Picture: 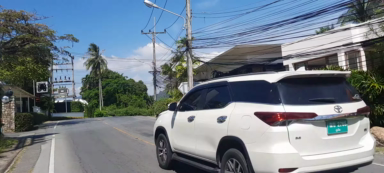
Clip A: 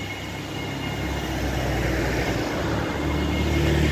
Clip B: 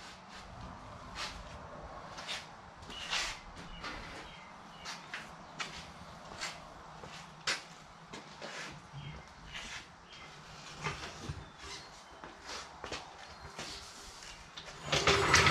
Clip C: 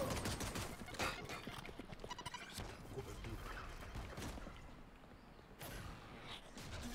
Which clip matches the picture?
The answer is A